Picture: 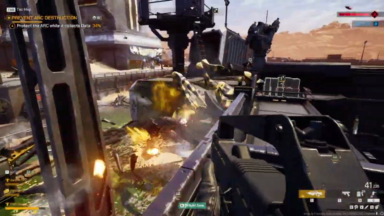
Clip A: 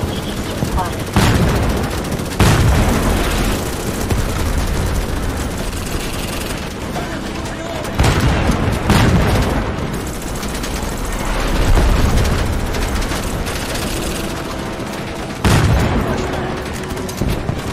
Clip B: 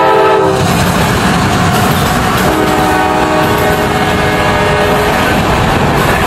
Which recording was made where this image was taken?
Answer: A